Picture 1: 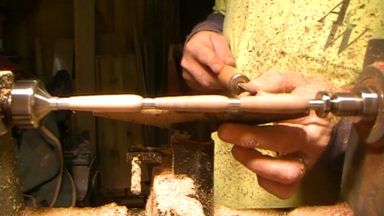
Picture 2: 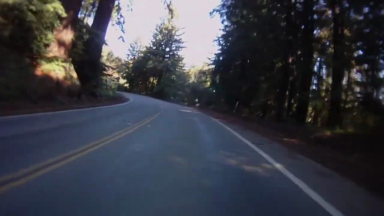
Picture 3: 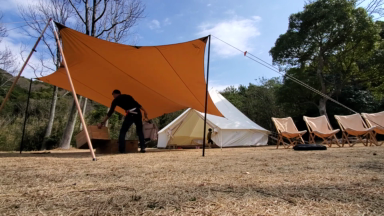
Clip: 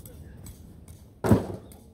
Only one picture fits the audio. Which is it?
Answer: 3